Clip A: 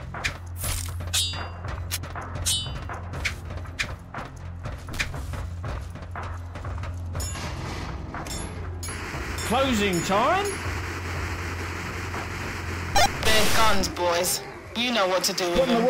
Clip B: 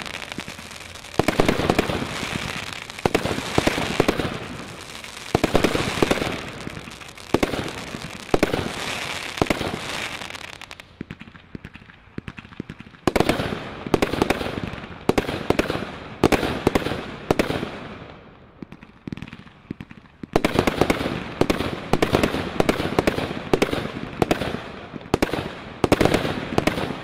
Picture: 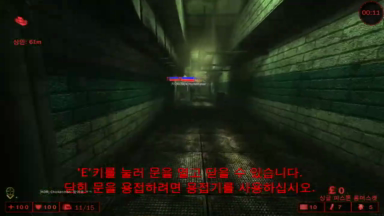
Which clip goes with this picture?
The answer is A